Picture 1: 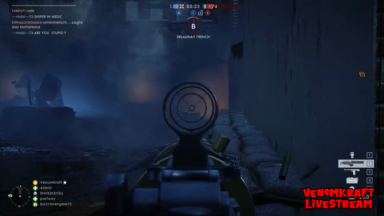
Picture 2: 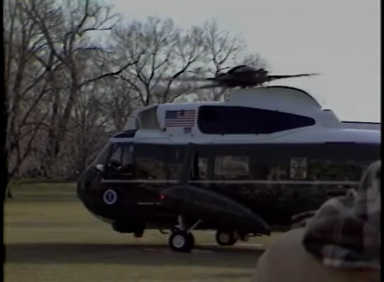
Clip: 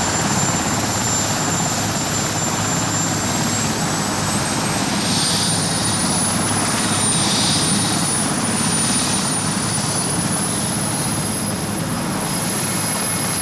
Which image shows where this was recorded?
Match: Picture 2